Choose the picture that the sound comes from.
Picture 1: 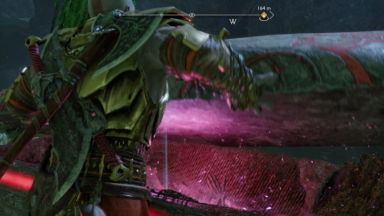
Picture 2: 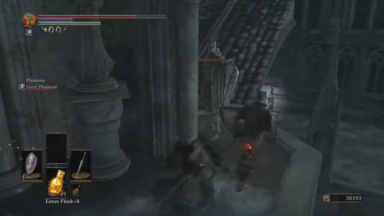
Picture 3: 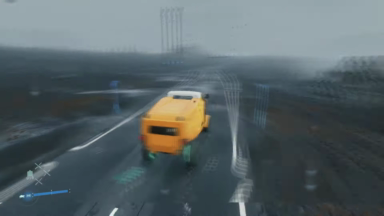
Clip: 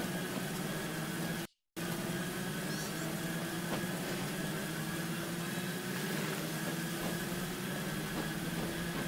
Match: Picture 3